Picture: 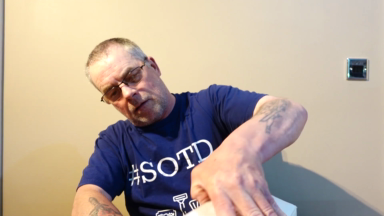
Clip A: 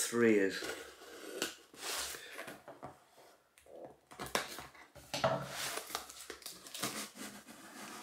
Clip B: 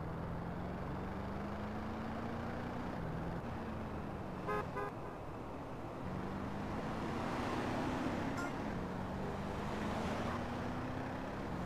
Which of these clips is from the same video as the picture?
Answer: A